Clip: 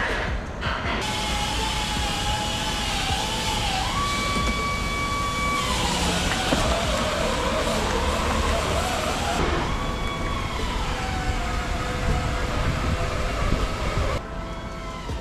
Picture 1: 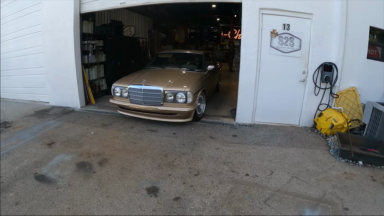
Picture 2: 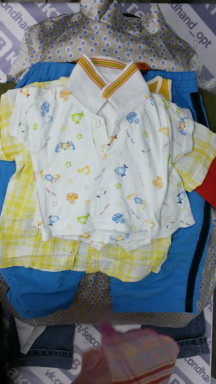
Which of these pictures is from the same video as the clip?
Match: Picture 1